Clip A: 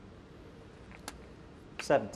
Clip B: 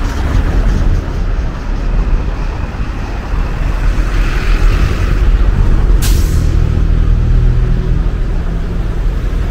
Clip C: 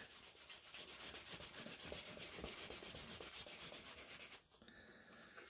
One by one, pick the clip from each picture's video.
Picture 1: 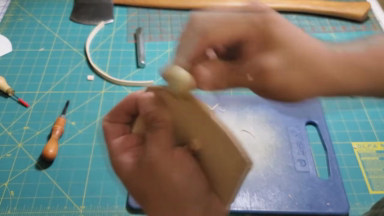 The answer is C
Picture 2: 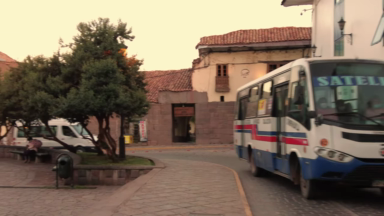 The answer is B